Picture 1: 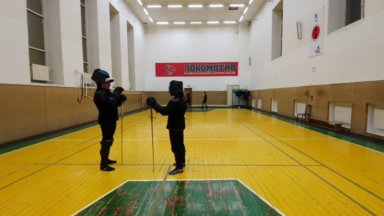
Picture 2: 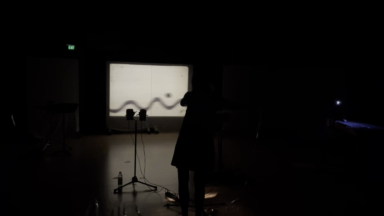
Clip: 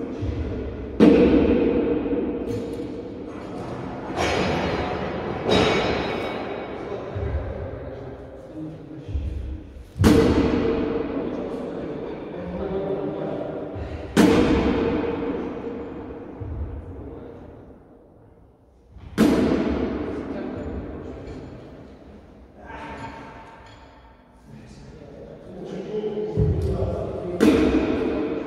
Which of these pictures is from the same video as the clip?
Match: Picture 1